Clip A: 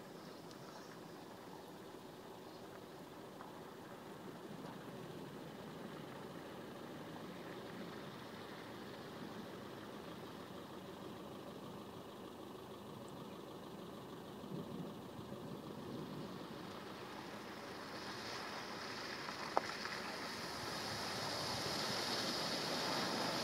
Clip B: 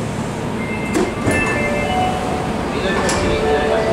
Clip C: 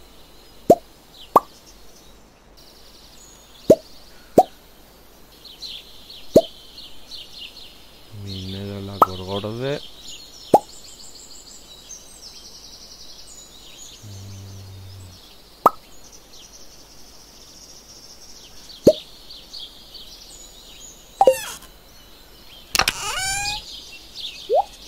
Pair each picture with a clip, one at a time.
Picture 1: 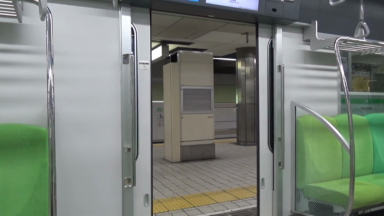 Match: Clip B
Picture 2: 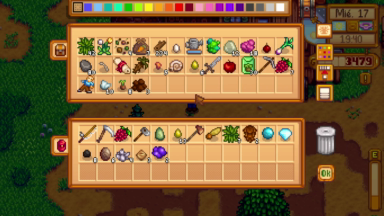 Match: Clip C